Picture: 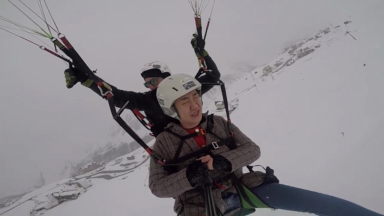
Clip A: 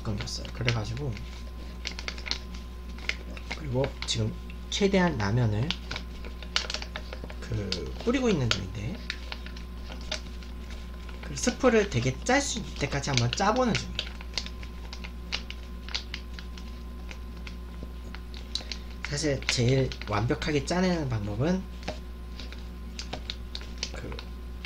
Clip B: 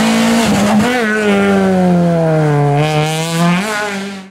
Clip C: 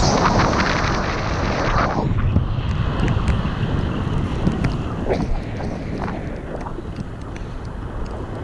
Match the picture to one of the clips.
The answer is C